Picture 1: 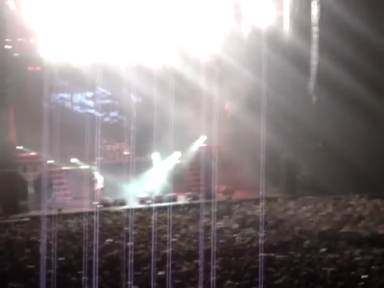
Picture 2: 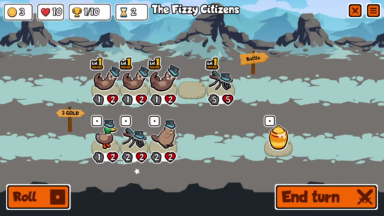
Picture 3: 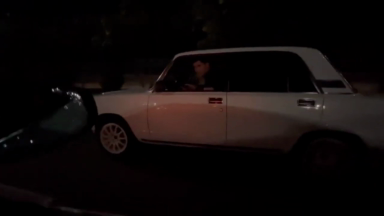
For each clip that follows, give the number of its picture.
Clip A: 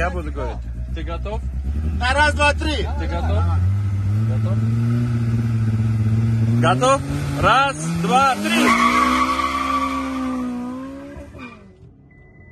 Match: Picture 3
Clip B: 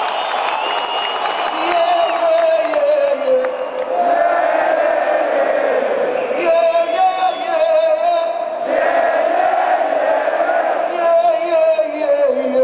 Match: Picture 1